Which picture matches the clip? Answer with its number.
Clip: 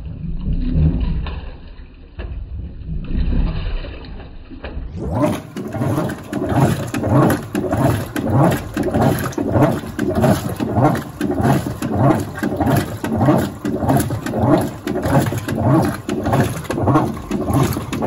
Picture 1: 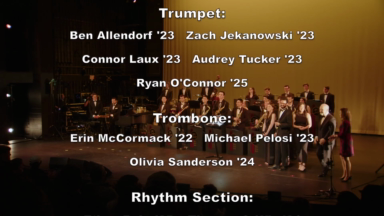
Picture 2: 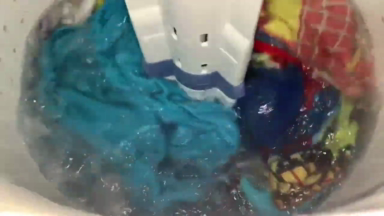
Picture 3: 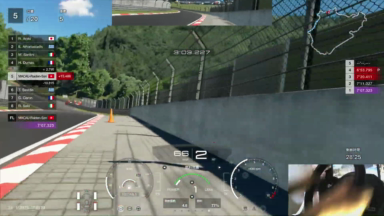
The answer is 2